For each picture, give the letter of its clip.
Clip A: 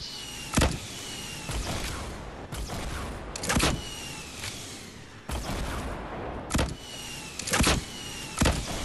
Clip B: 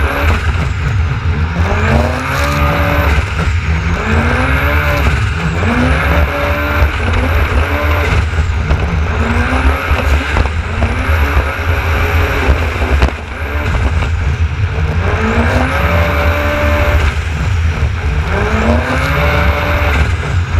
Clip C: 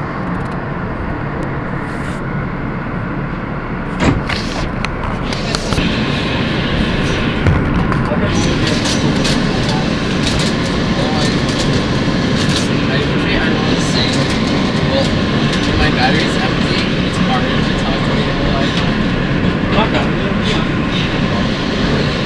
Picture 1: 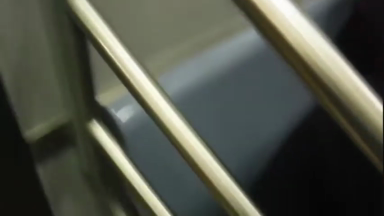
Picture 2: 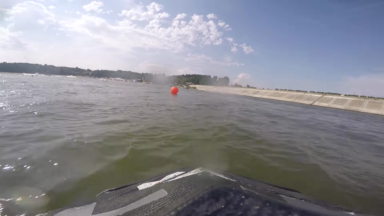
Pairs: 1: C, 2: B